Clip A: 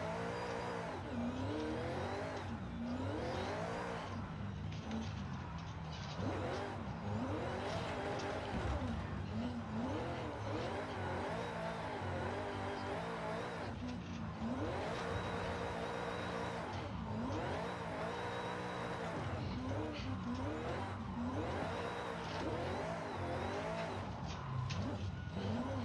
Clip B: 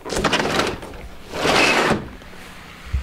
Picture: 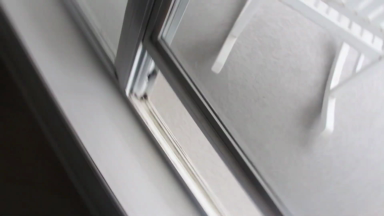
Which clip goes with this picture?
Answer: B